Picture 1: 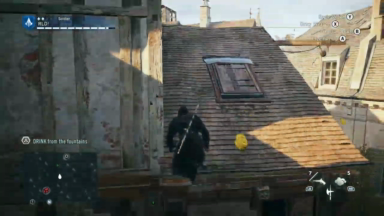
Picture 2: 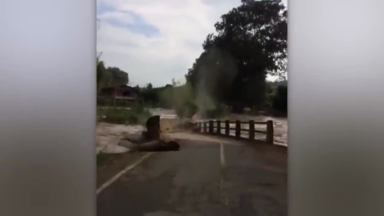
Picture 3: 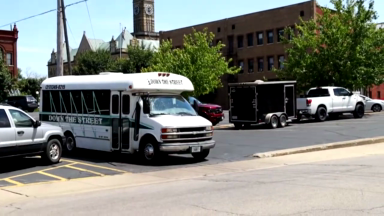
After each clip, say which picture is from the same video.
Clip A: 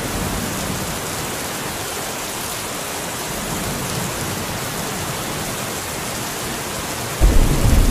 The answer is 2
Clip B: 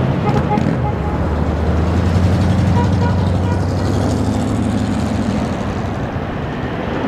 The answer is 3